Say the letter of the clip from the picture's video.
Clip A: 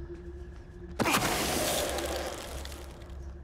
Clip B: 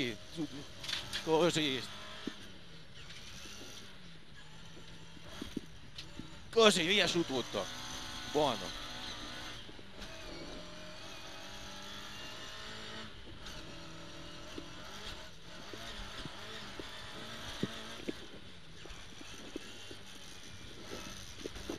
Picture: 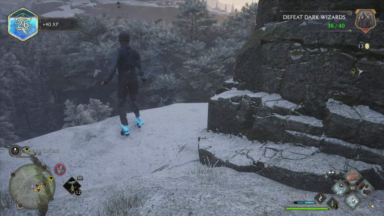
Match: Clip A